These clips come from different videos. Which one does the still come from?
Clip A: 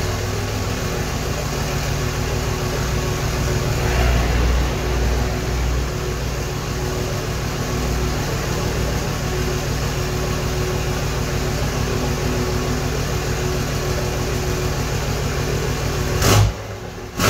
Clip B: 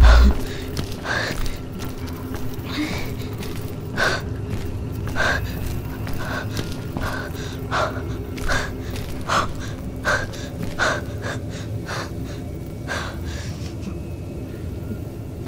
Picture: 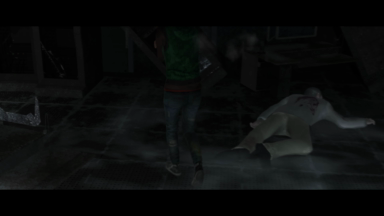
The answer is B